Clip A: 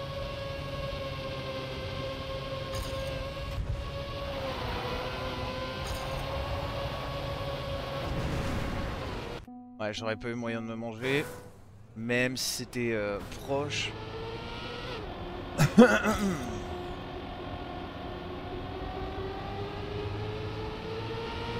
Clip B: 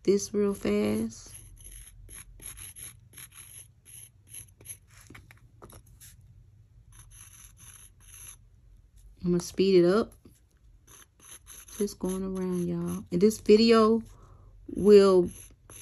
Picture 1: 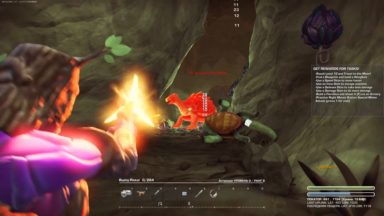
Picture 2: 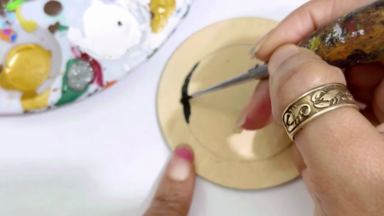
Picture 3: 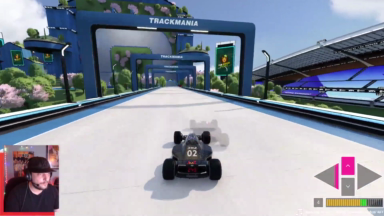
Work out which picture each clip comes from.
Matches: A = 3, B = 2